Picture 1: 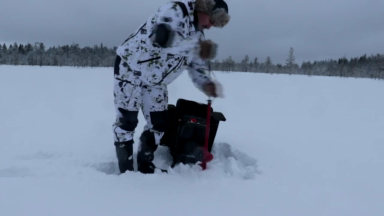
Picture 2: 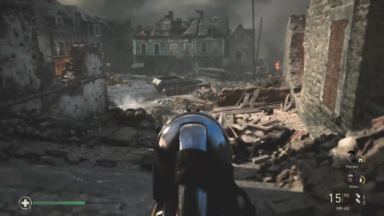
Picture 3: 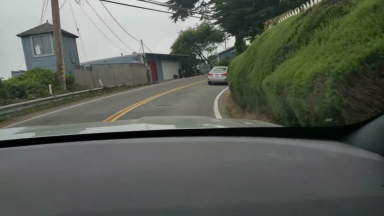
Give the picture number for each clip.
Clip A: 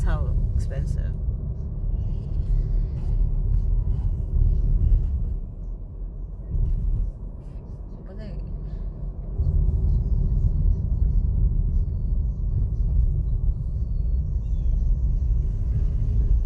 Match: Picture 3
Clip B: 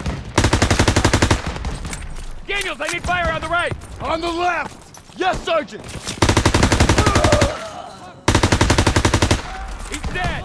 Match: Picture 2